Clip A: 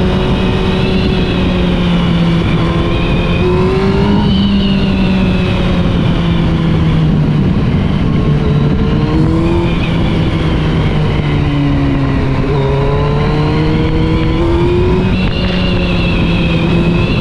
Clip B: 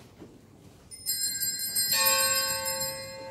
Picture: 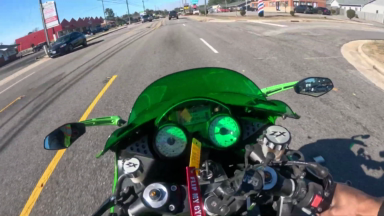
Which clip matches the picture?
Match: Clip A